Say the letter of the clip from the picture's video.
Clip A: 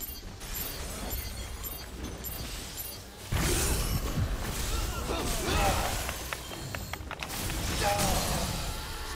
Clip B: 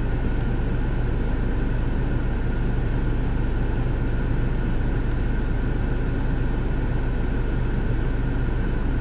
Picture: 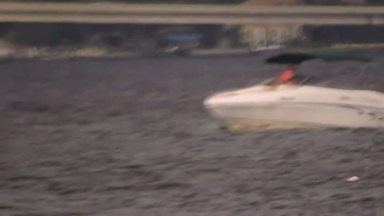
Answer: B